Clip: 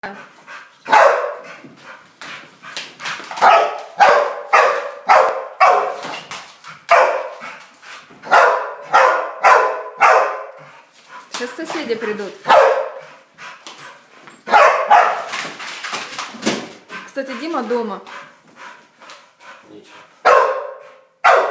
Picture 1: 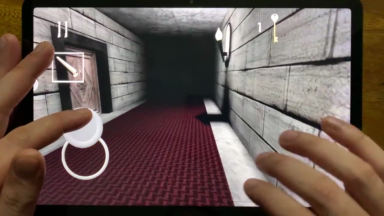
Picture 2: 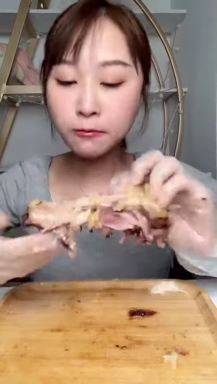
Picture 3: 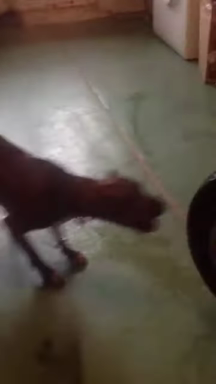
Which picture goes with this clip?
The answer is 3